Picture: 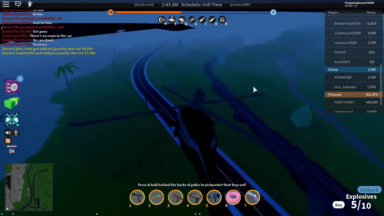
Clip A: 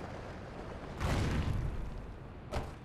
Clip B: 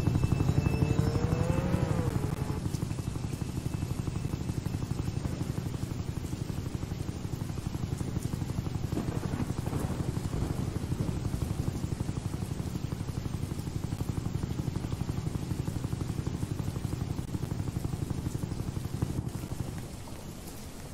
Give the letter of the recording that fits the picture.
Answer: B